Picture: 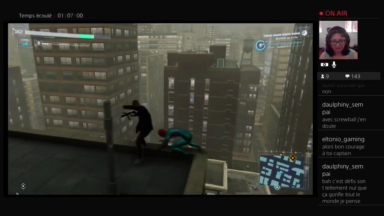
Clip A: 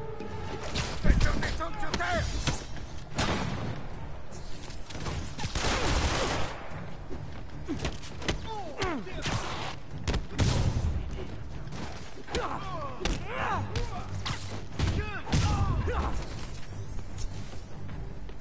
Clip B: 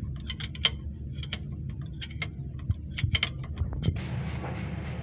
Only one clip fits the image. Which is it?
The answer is A